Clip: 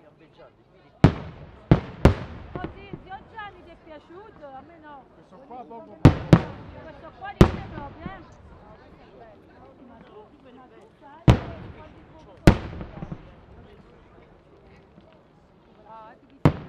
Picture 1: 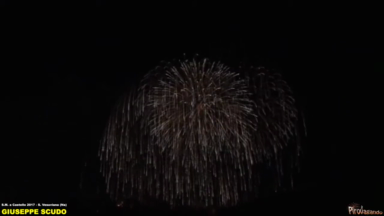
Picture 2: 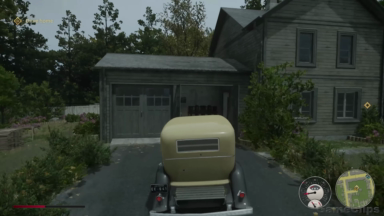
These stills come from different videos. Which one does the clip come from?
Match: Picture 1